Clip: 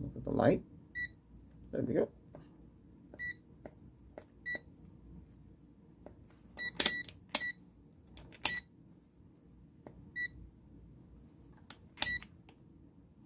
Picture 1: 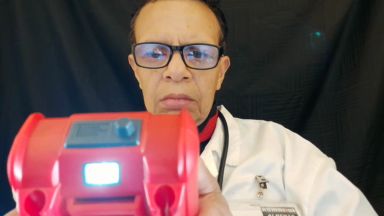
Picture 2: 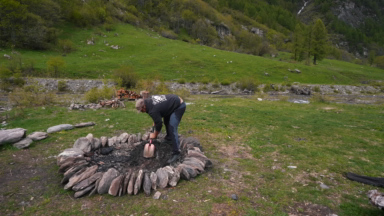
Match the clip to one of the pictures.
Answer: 1